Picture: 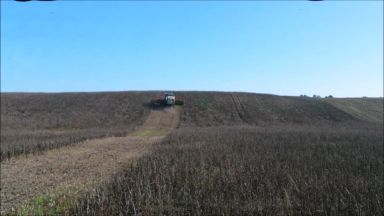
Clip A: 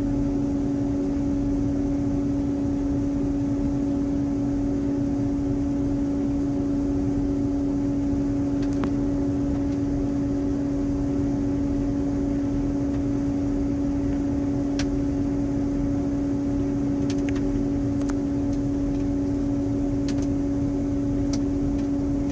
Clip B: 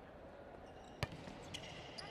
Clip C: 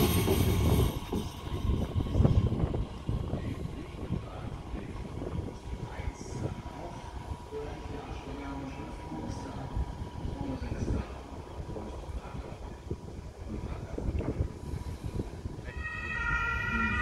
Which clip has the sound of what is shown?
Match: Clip A